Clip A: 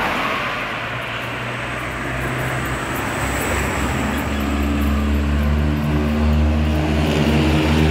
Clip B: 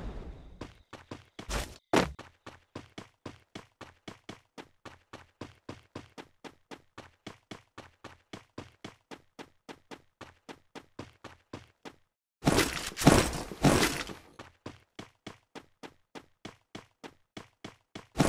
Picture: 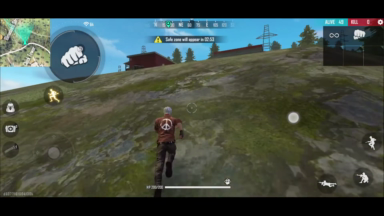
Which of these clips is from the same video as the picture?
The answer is B